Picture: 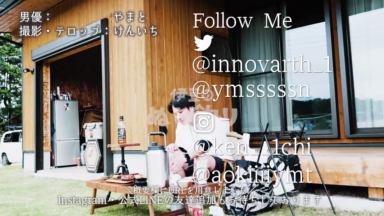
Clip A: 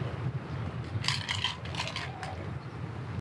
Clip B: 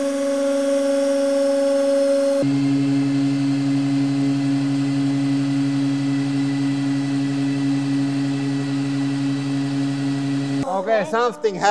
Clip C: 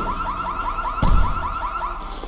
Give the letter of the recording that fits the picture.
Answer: A